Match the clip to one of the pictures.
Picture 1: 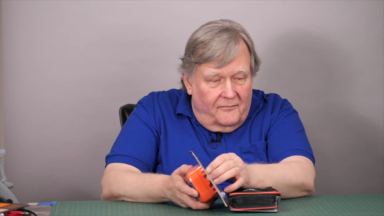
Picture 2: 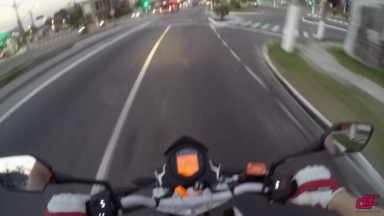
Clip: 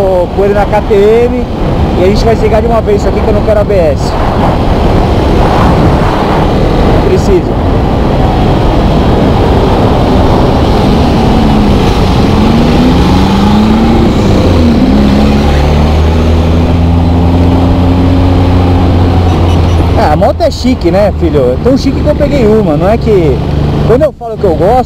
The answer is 2